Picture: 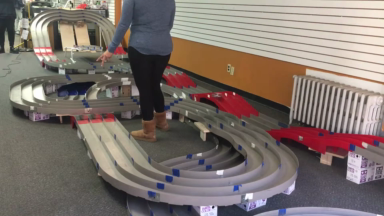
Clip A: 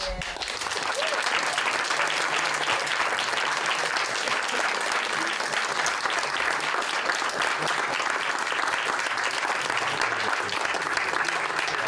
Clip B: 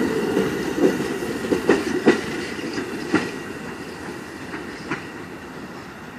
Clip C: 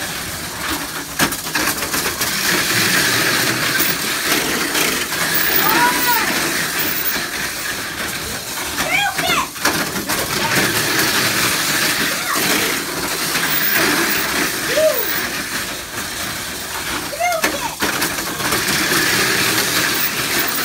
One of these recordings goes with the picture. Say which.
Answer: C